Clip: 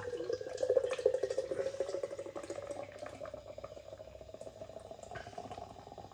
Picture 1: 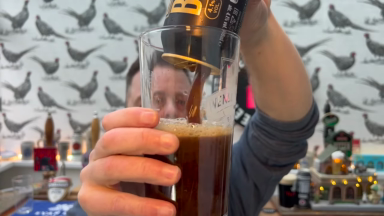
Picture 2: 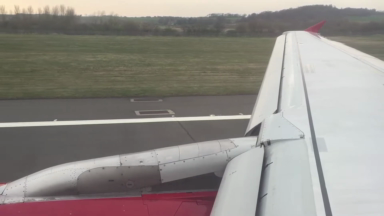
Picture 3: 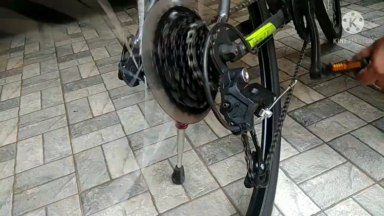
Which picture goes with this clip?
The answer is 1